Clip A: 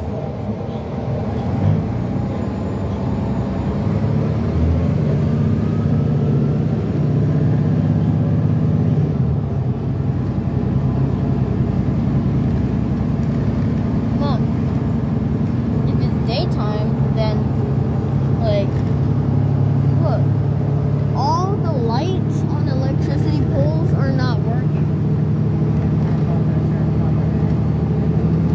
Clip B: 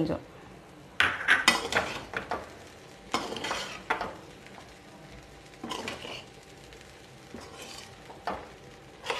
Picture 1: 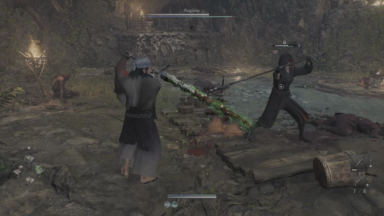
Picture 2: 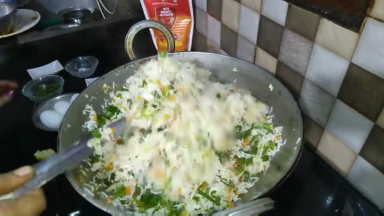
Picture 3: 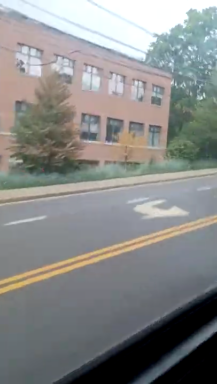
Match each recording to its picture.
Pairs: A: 3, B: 2